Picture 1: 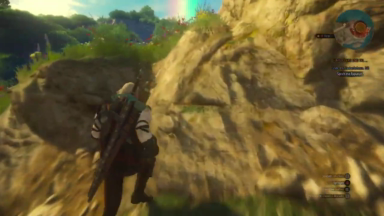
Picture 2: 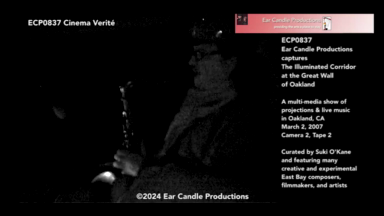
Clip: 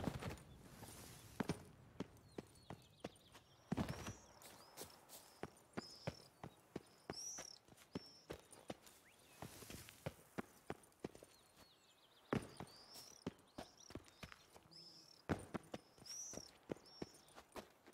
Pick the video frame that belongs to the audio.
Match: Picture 1